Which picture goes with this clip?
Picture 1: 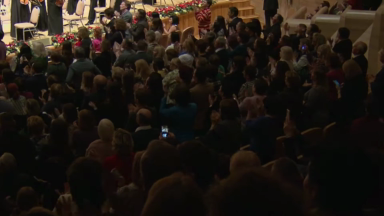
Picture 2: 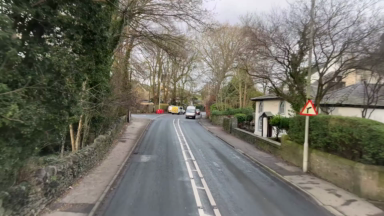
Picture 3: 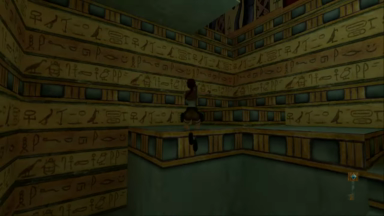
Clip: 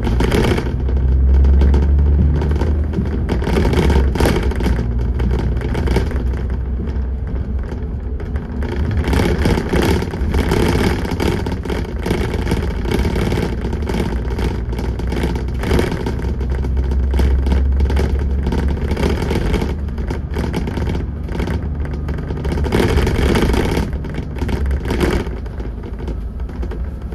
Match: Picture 2